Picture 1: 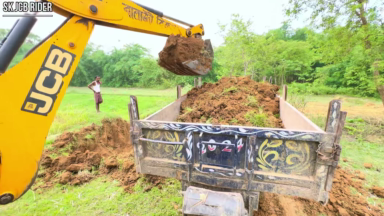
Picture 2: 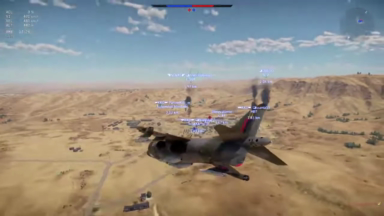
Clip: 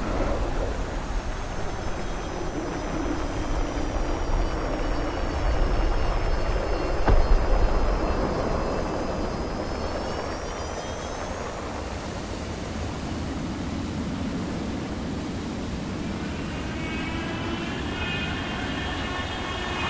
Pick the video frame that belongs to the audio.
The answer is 2